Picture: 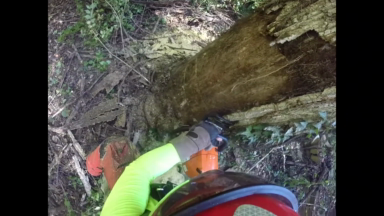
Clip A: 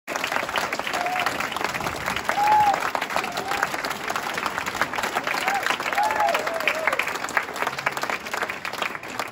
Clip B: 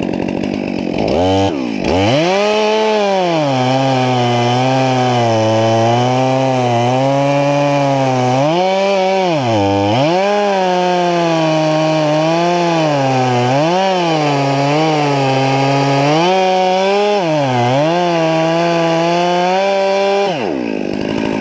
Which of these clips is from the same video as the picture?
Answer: B